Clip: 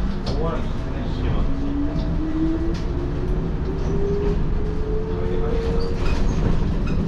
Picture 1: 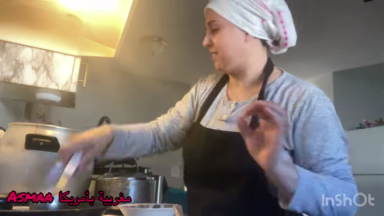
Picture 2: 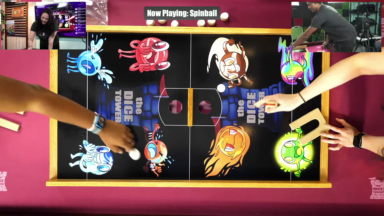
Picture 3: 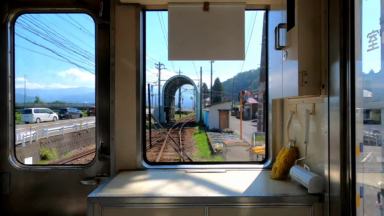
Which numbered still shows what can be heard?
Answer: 3